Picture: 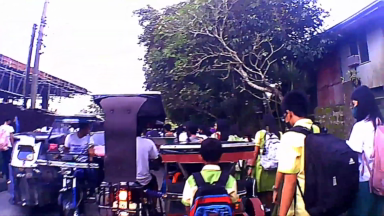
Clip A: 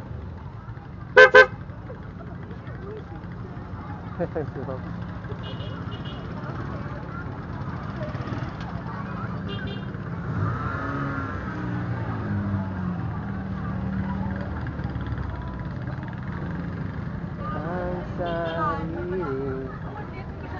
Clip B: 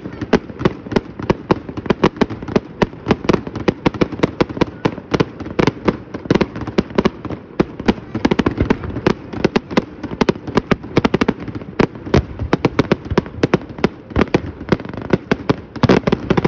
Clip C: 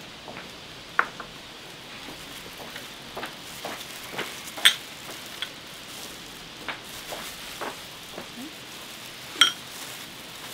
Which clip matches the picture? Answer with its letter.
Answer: A